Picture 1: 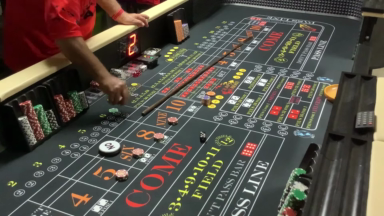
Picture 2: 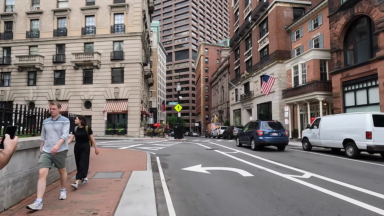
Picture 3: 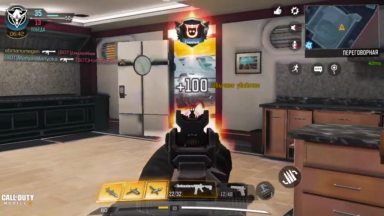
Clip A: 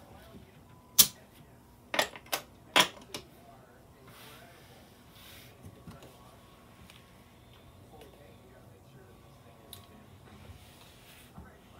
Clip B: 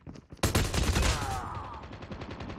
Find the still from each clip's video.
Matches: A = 1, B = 3